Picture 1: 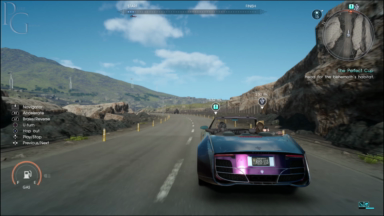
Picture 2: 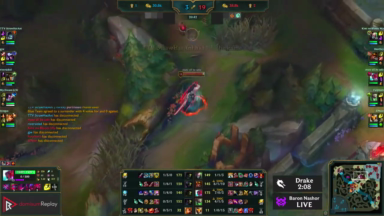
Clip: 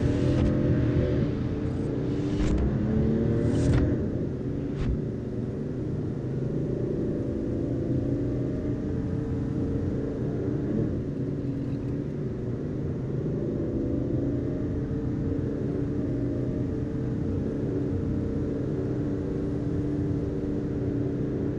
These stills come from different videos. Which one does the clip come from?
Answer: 1